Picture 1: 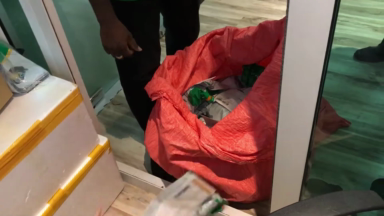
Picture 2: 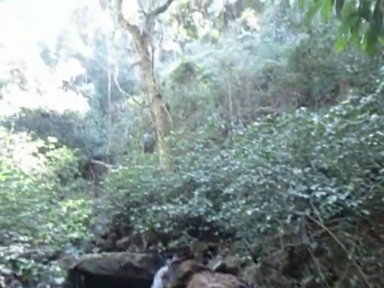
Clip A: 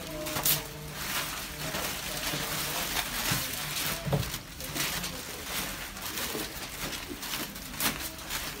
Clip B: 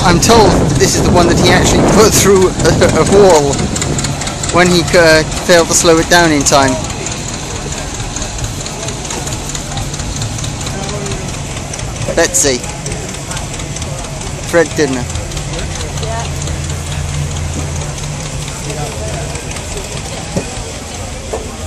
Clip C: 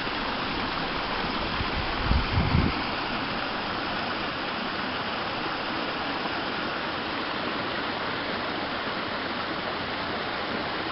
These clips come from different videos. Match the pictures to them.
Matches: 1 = A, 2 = C